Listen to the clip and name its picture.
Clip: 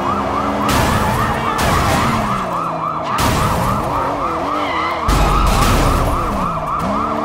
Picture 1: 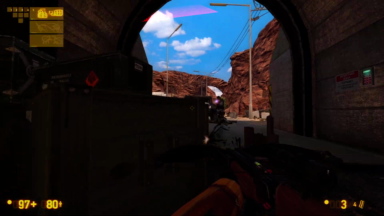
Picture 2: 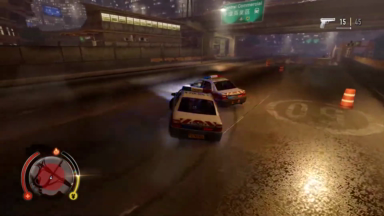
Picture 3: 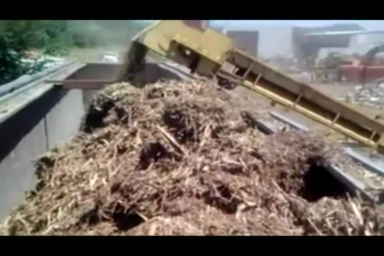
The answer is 2